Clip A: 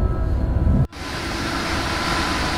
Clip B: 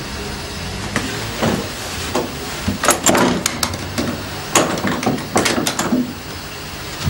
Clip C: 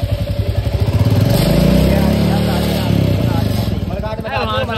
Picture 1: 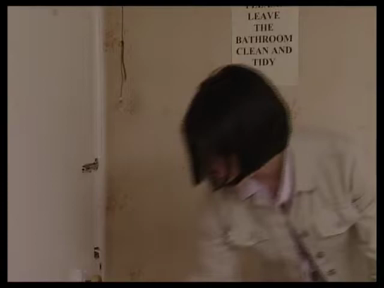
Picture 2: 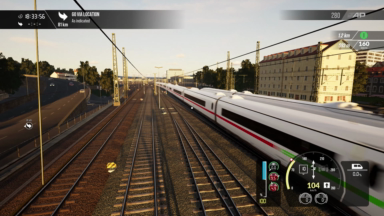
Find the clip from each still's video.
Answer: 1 B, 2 A